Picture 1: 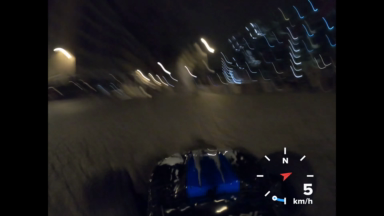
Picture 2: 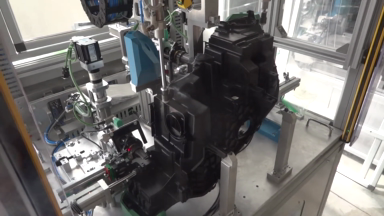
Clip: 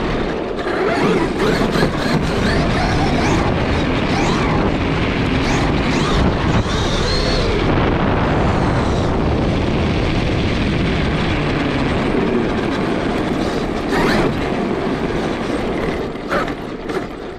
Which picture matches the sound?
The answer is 1